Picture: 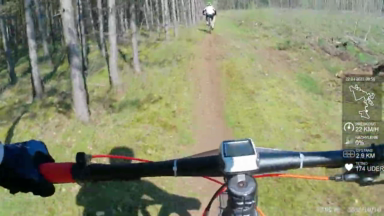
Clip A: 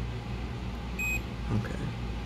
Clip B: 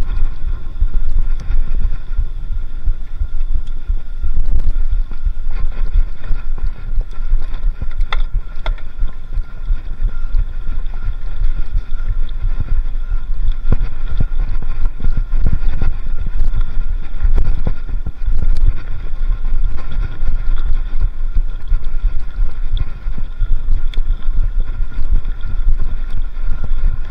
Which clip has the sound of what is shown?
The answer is B